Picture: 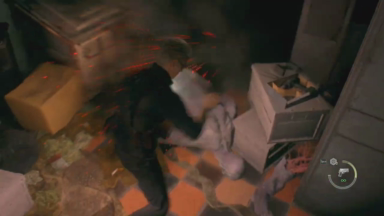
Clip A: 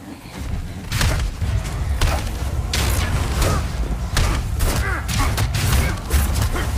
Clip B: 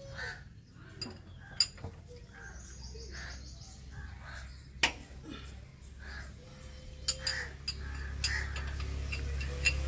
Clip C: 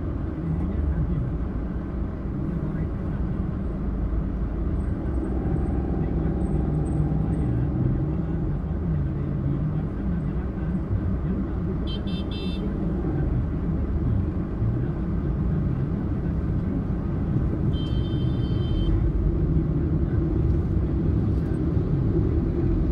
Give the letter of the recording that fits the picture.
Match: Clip A